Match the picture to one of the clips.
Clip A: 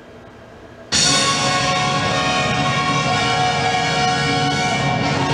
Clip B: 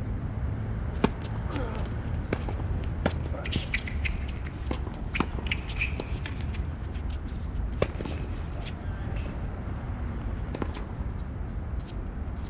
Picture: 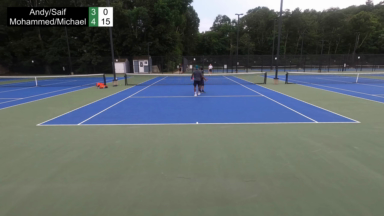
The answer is B